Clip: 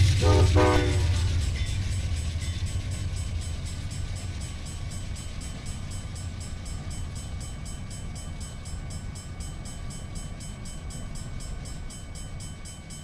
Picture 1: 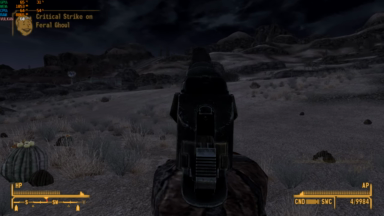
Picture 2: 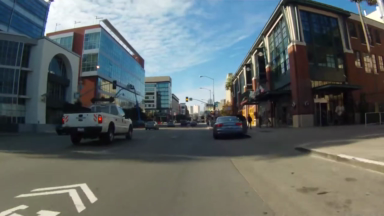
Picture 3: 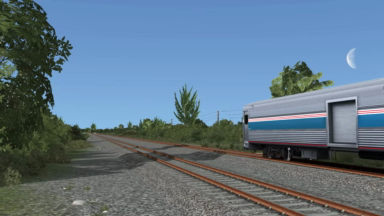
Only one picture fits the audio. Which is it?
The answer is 3